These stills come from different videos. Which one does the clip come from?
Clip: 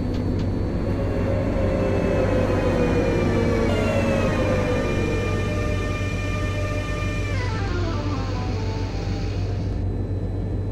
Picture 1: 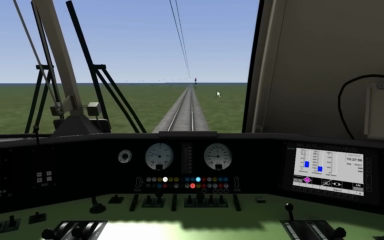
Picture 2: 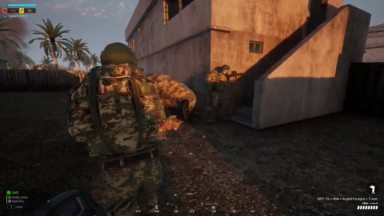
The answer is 1